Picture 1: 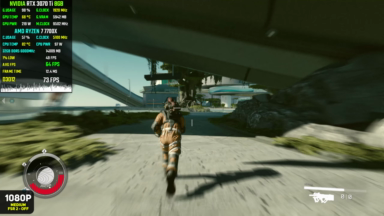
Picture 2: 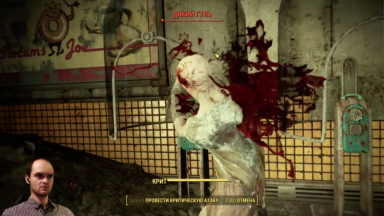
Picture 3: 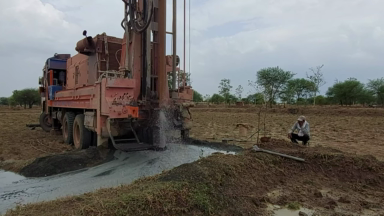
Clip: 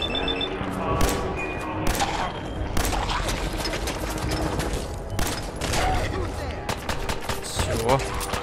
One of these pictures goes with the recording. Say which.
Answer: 2